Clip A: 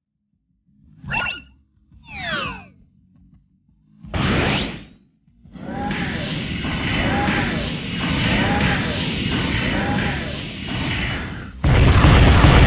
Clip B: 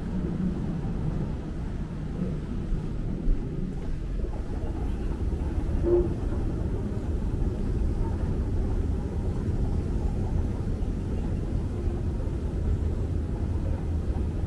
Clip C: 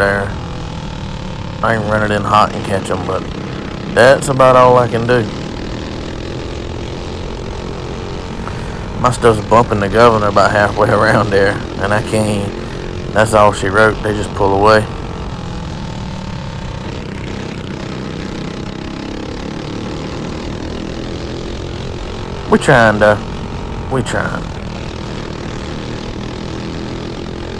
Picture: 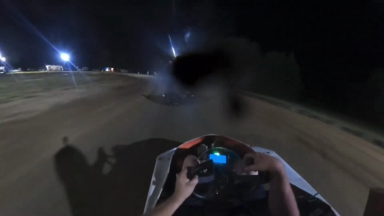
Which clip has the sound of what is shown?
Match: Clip C